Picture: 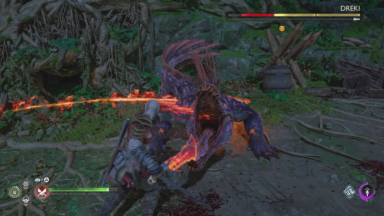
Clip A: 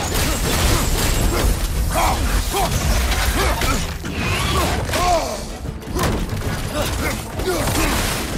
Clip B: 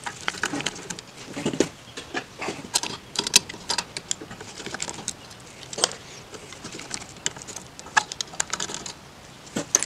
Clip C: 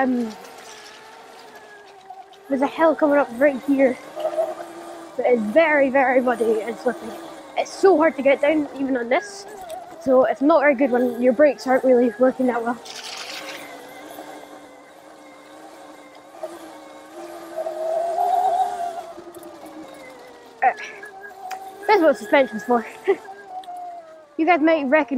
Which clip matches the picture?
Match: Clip A